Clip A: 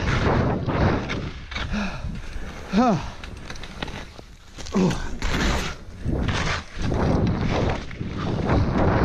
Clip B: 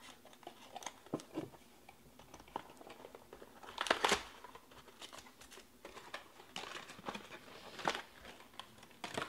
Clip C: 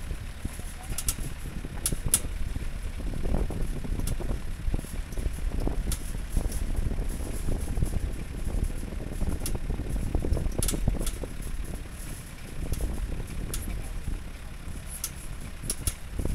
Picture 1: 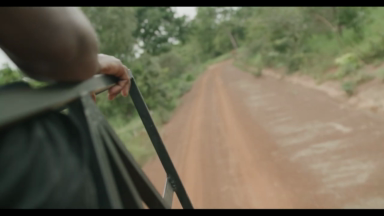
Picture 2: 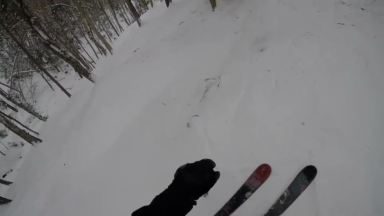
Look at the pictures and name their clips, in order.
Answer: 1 C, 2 A